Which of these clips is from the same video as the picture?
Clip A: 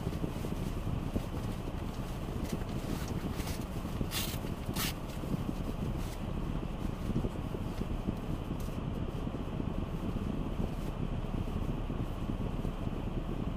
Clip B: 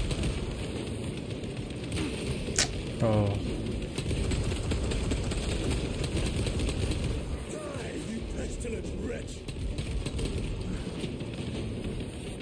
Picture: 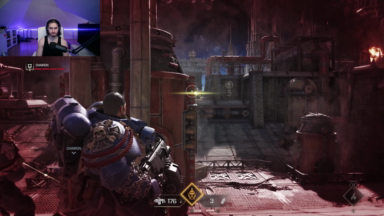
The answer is B